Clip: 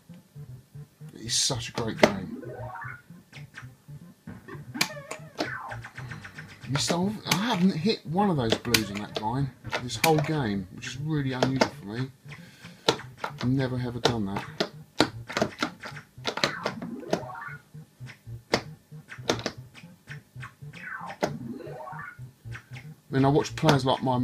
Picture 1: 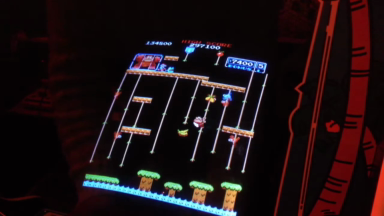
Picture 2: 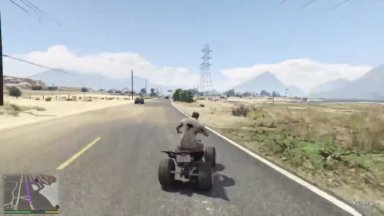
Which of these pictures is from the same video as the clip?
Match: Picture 1